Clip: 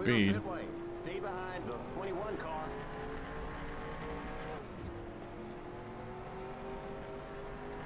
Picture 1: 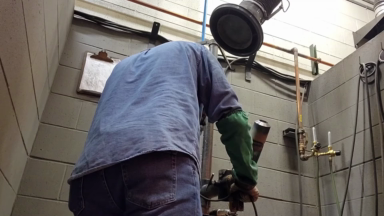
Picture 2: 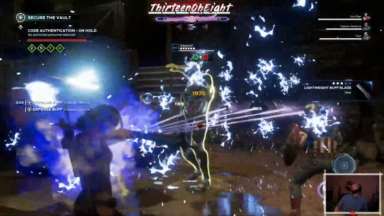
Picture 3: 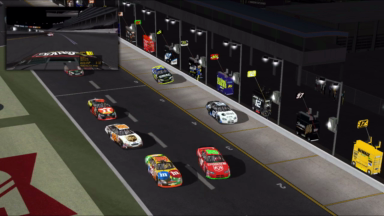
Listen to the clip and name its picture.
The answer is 3